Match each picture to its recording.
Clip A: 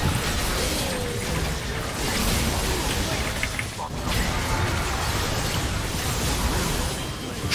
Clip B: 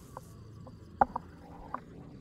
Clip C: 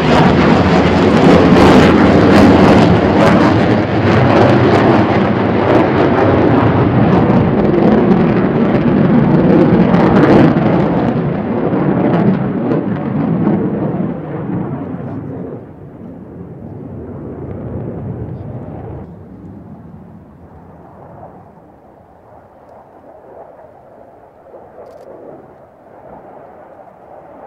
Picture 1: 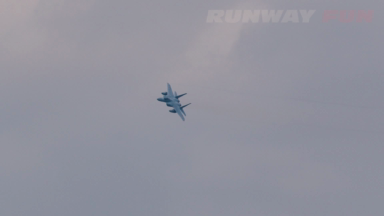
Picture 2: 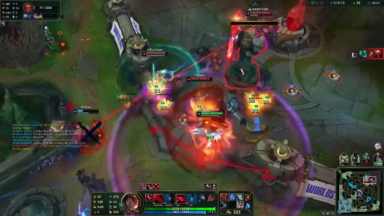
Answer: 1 C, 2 A